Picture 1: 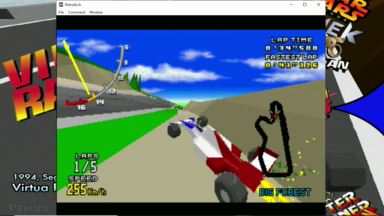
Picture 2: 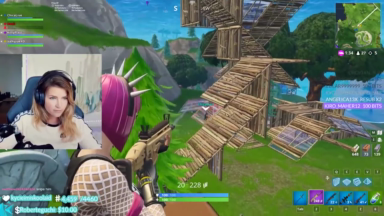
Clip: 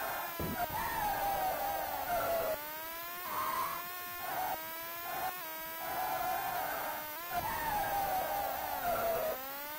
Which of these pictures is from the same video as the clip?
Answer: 1